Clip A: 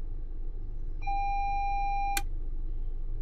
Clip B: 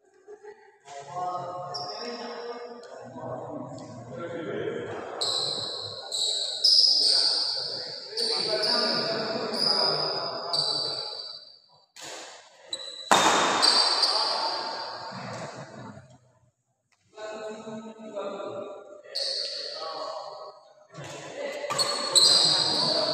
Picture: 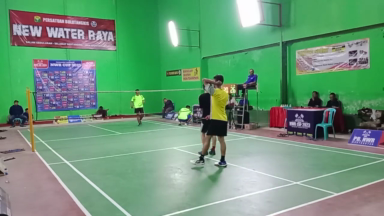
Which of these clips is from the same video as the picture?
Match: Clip B